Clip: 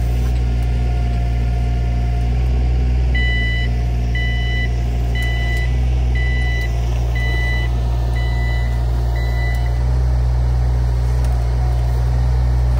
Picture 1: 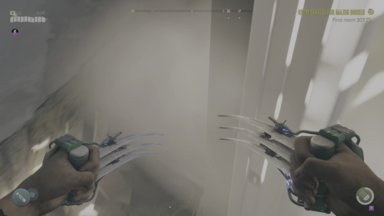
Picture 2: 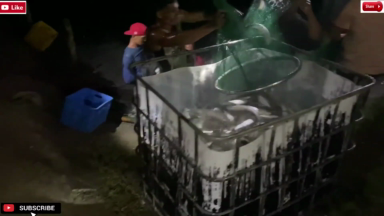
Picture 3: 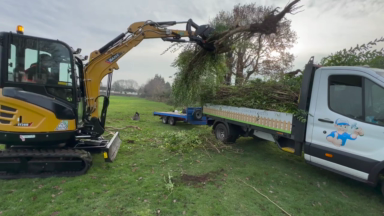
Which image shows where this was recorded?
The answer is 3